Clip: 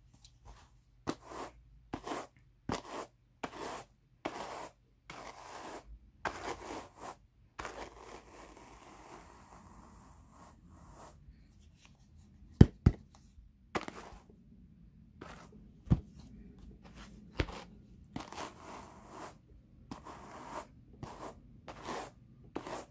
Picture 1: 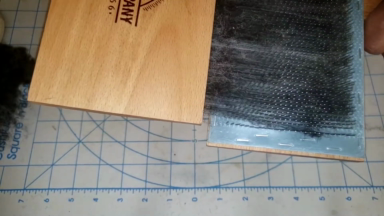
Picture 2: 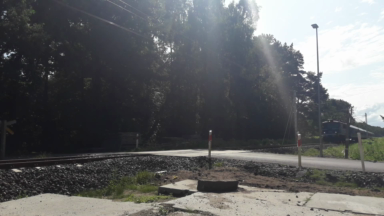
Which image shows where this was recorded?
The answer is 1